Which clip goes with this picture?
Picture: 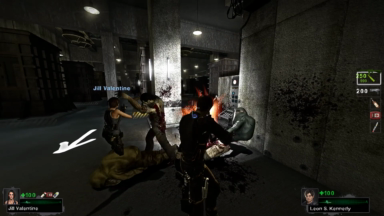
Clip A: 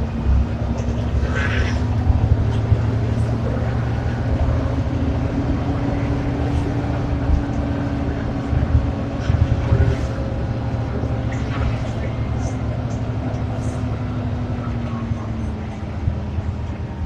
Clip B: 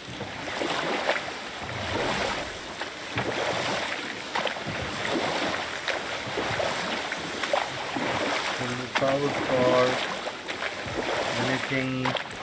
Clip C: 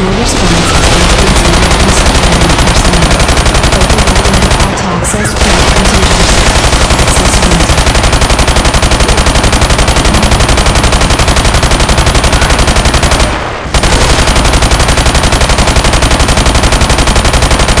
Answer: C